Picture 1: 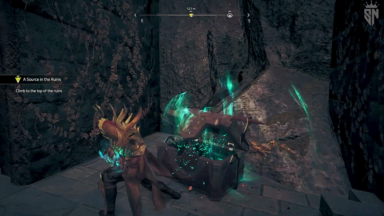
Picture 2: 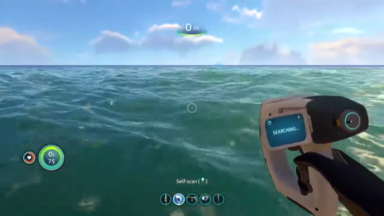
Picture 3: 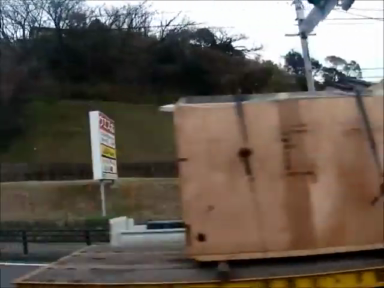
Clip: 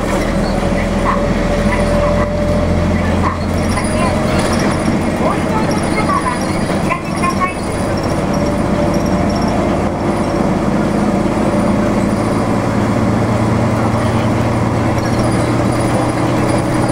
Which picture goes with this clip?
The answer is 3